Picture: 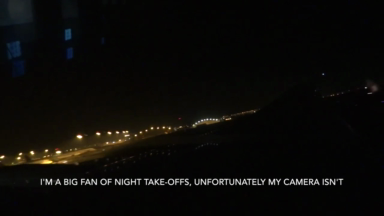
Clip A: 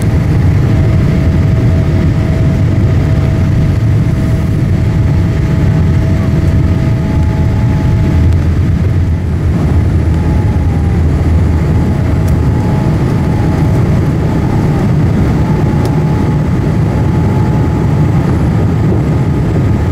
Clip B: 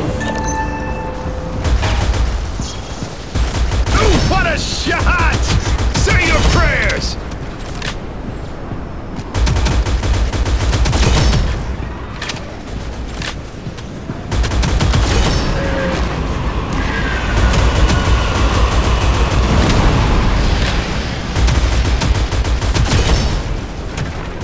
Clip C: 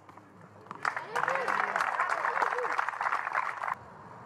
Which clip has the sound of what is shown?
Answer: A